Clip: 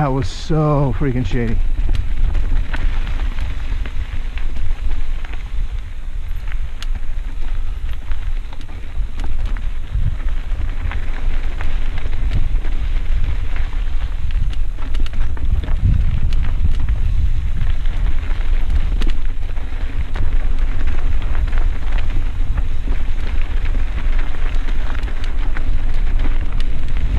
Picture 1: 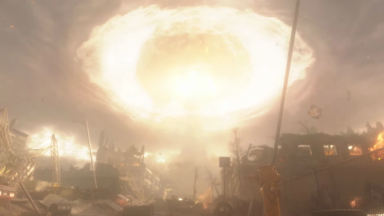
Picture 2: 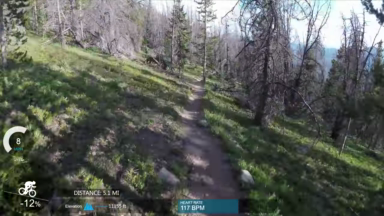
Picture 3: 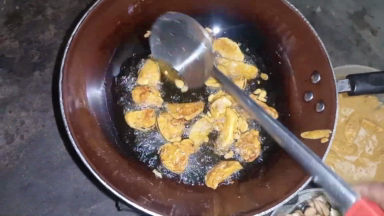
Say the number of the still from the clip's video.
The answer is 2